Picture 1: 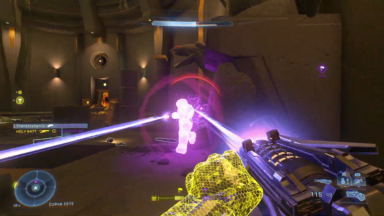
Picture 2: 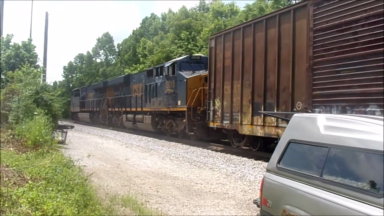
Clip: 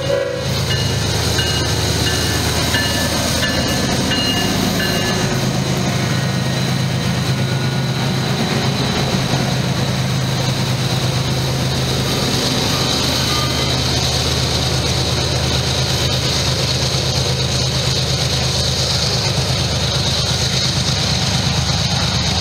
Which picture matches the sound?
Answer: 2